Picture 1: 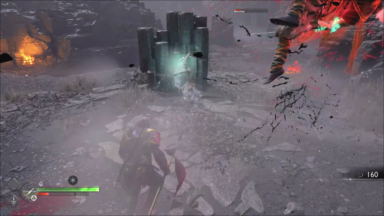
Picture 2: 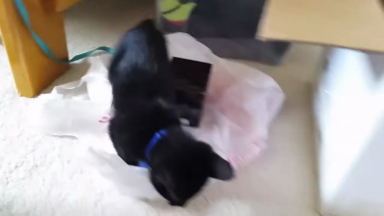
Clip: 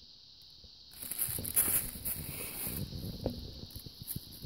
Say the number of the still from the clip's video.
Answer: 2